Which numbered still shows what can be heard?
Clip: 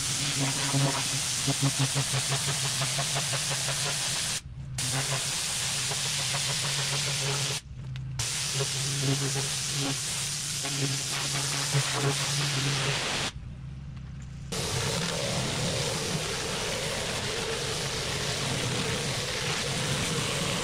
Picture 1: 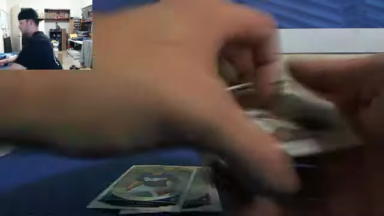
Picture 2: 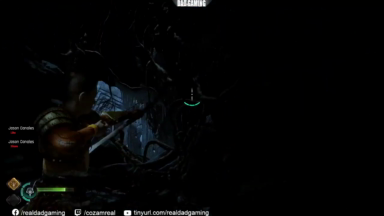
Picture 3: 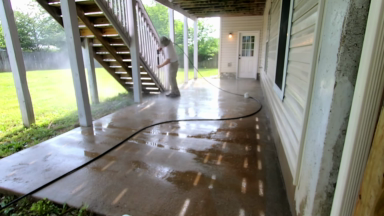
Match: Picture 3